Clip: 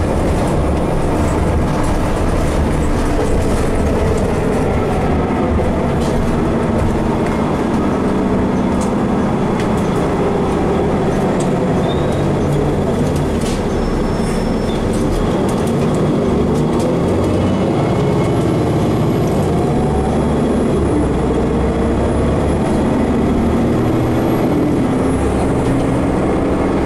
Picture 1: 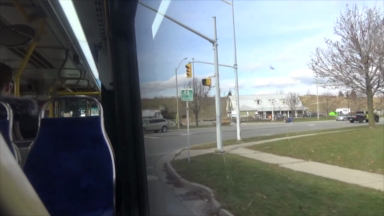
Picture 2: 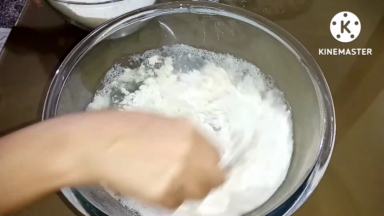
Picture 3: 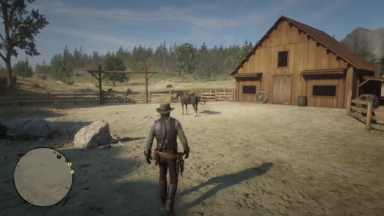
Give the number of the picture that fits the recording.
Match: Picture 1